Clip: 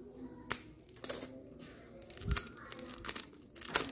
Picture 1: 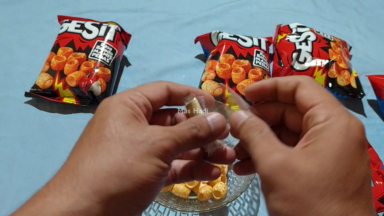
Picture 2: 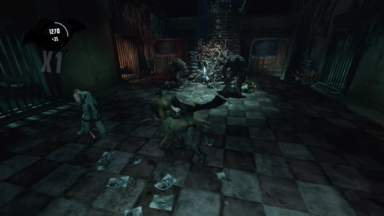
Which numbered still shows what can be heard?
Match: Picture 1